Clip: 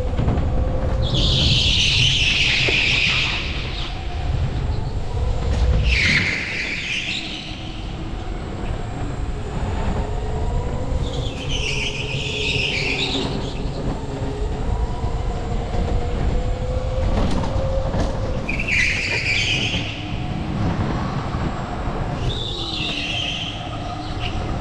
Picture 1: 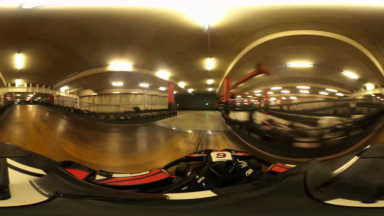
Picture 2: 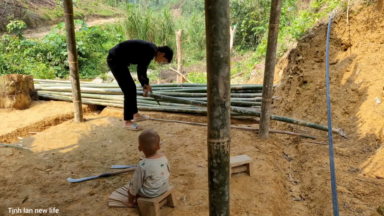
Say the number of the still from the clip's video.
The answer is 1